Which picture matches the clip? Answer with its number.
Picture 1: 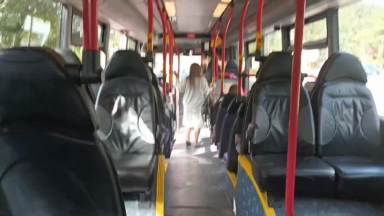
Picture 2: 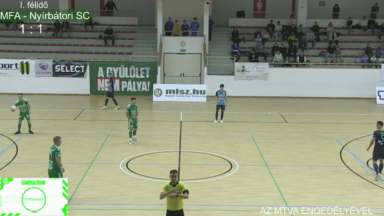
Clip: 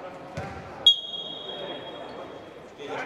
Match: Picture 2